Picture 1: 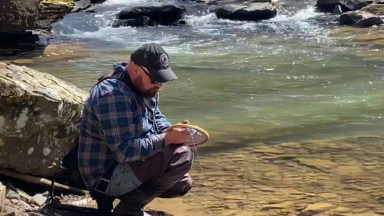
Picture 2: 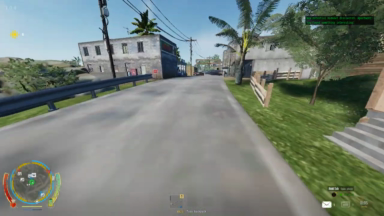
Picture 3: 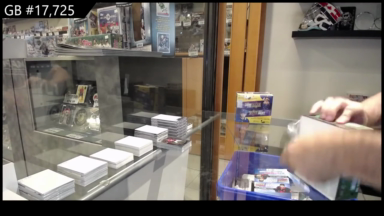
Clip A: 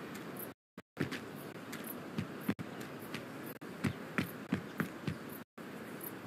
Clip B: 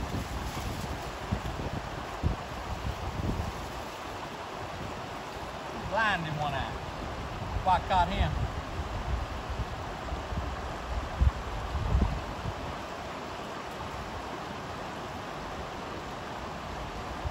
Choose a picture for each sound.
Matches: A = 2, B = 1